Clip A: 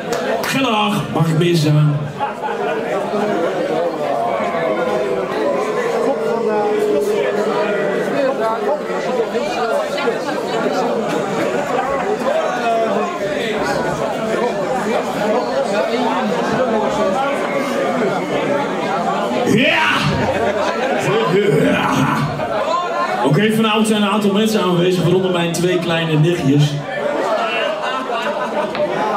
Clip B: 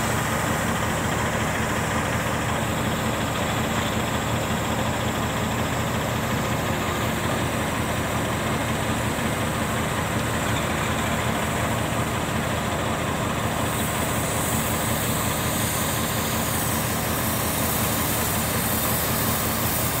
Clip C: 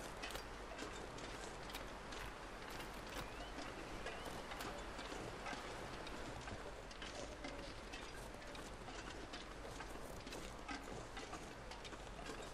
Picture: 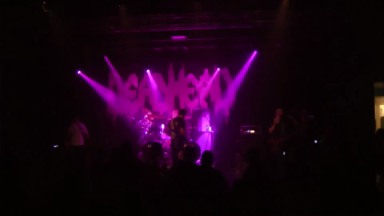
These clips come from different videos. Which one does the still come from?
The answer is A